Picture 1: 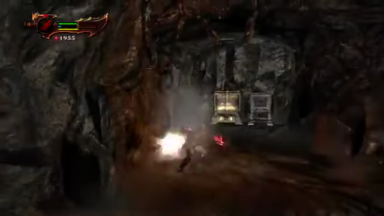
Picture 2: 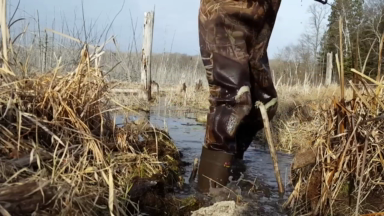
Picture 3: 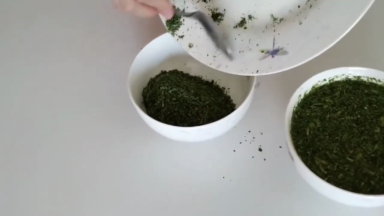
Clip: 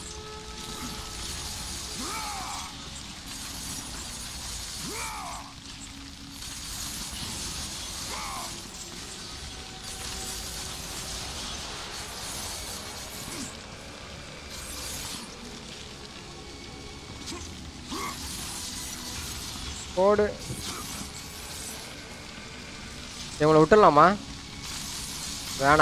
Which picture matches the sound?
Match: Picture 1